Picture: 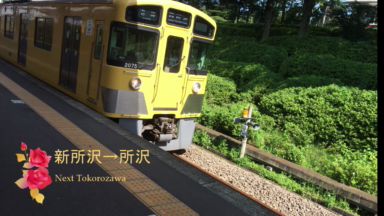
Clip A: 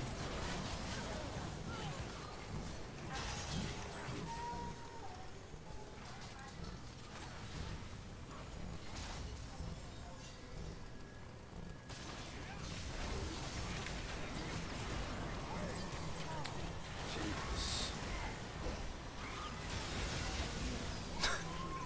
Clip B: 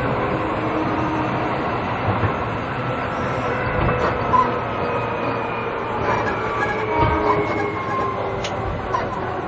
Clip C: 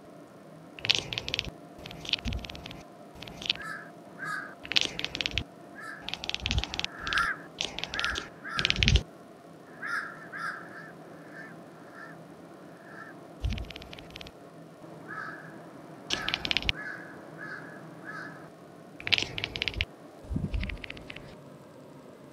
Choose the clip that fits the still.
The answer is B